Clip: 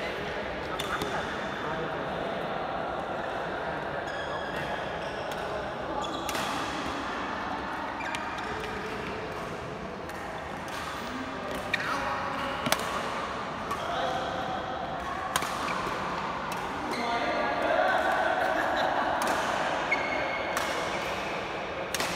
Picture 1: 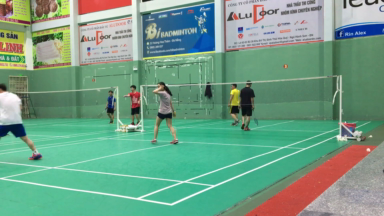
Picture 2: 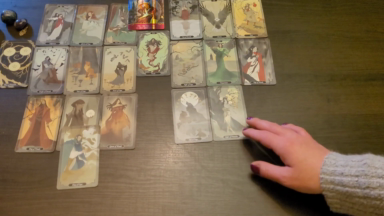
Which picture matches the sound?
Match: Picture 1